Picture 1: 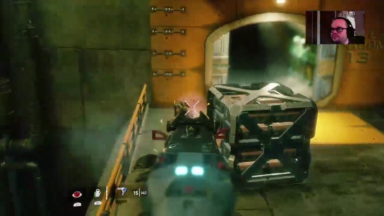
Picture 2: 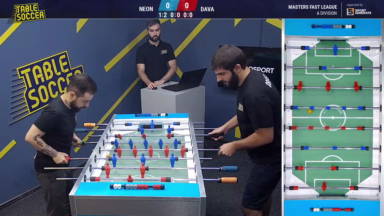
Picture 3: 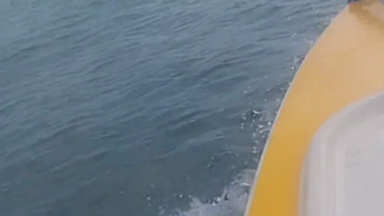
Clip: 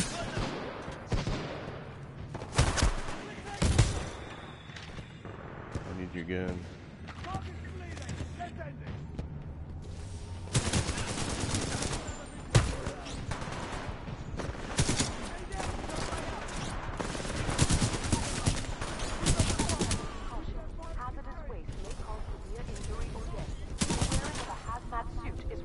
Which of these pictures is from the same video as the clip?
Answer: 1